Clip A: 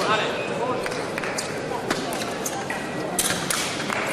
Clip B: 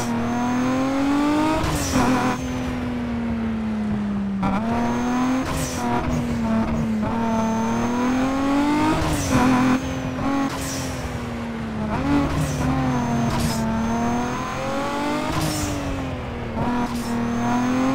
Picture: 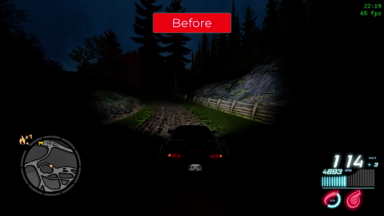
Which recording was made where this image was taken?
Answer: B